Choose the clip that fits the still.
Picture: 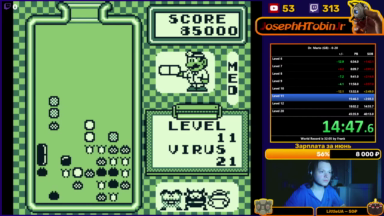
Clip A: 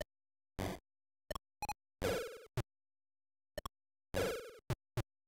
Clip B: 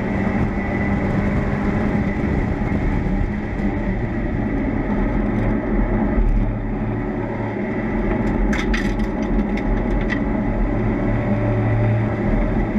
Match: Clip A